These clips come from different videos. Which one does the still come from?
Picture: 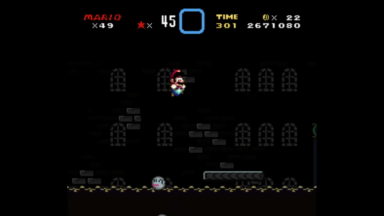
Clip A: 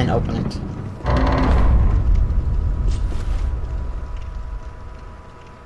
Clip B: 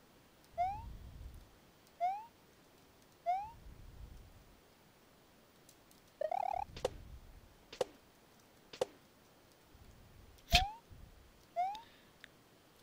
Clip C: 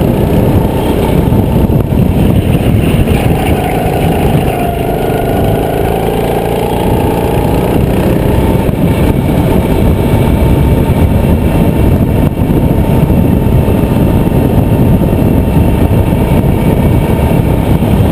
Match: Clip B